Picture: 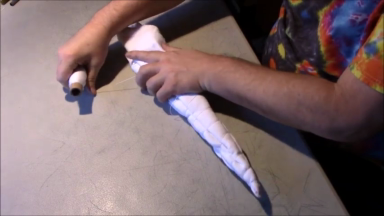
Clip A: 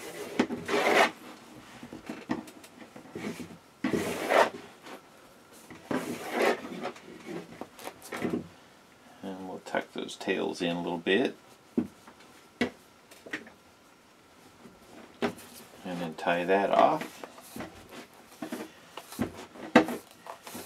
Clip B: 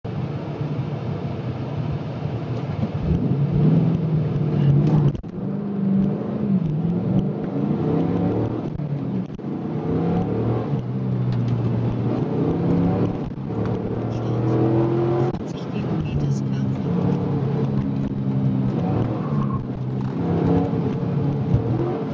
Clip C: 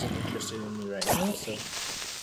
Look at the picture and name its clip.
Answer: A